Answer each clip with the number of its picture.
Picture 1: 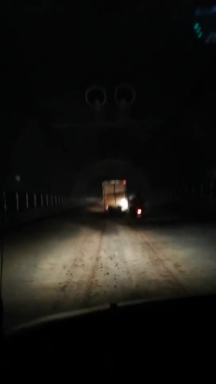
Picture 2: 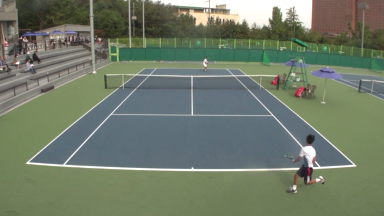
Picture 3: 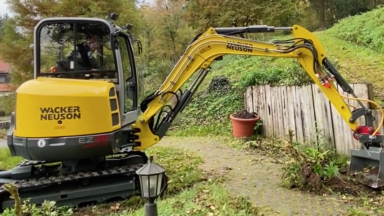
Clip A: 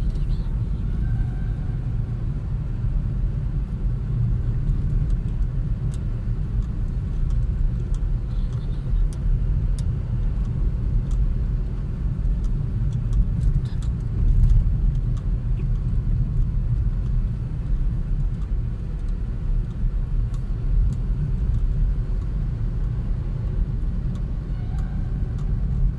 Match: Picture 1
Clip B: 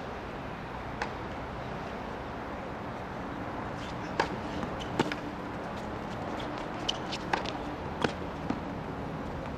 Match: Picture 2